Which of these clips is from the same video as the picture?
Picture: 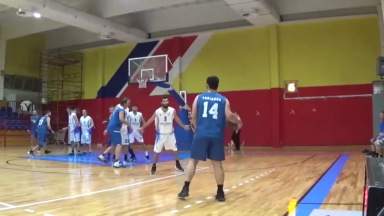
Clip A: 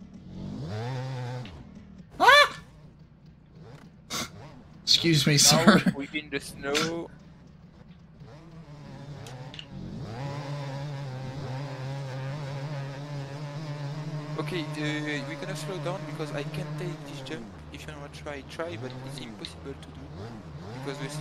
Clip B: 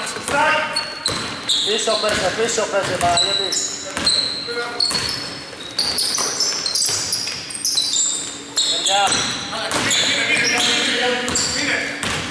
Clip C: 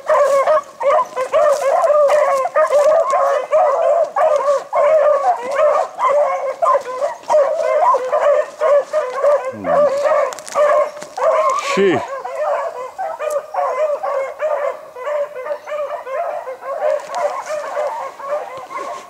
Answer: B